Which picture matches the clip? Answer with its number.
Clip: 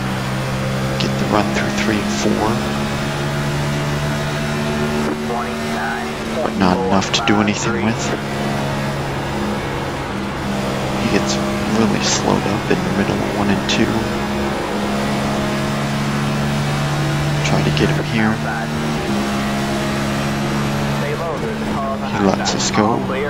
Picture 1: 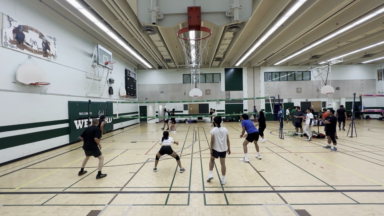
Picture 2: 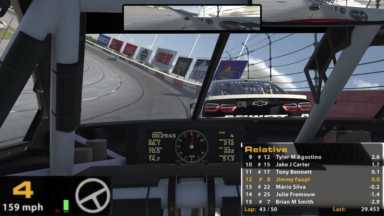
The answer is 2